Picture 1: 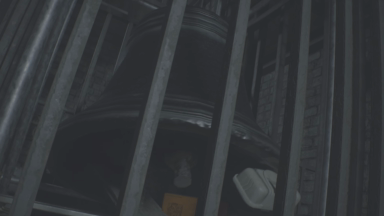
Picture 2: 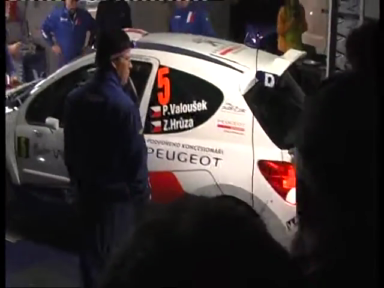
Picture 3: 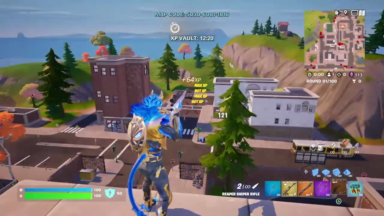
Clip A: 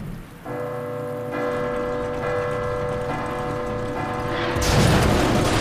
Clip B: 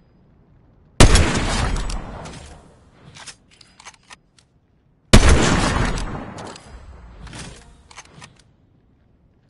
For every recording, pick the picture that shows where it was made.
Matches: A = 1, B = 3